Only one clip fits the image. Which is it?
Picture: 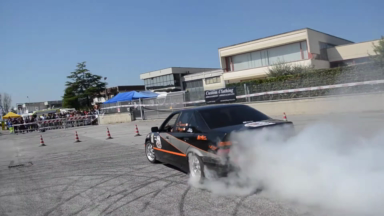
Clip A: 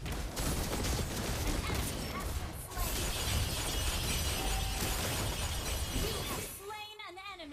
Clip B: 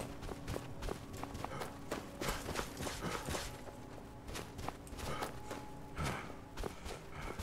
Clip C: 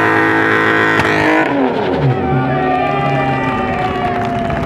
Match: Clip C